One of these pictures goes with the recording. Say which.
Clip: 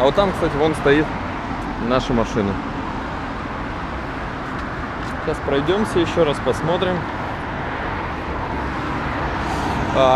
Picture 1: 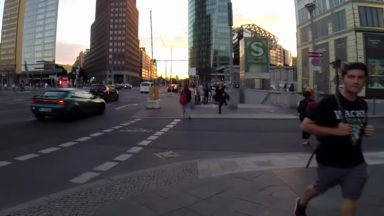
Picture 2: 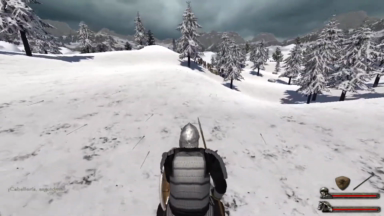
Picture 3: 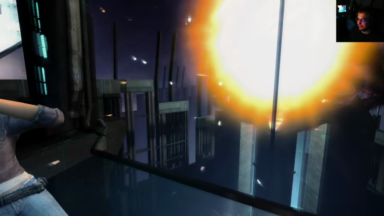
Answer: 1